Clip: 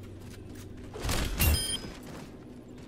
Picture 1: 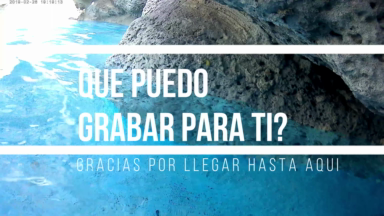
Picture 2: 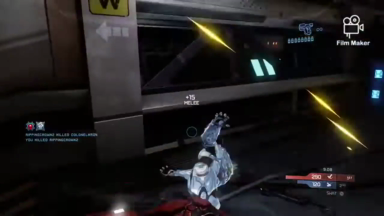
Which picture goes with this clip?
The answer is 2